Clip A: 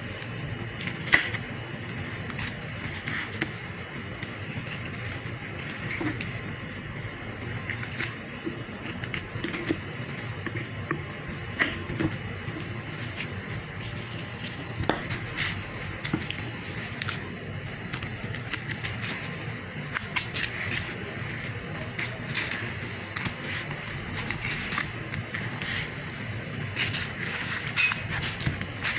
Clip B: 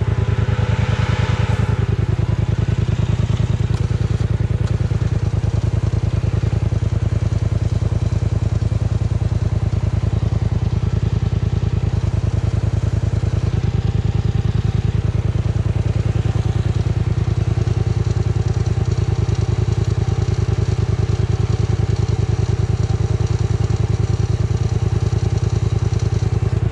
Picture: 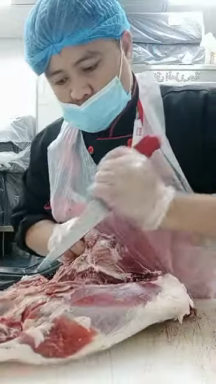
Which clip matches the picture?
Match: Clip A